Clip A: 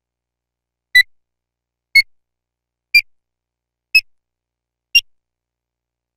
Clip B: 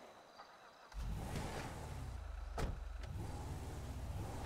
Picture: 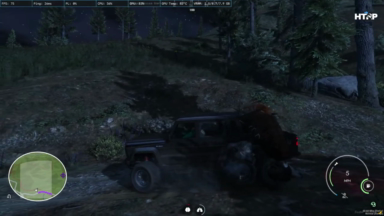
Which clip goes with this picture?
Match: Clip B